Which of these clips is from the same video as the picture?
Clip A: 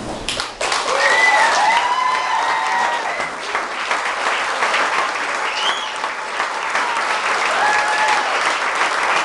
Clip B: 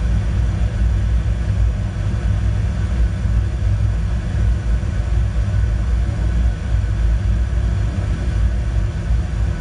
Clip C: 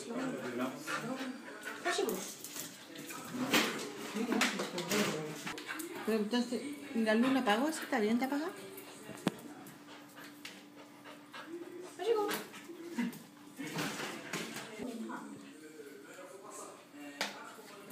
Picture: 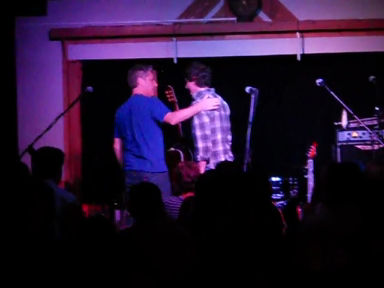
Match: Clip A